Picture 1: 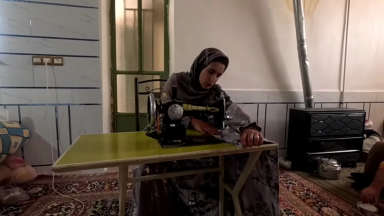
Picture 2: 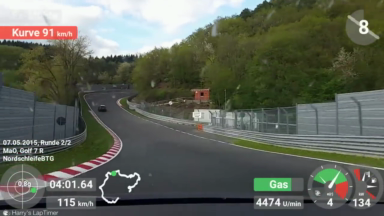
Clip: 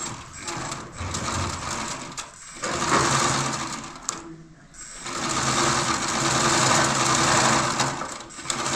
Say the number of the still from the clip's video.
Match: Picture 1